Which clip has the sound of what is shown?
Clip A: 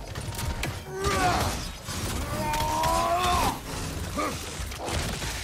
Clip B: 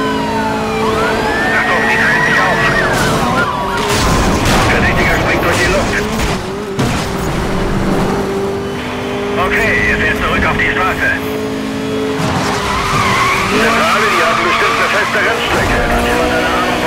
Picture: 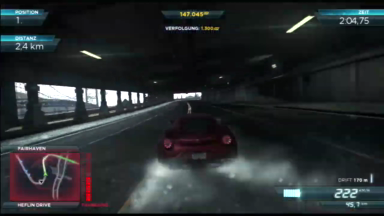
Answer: B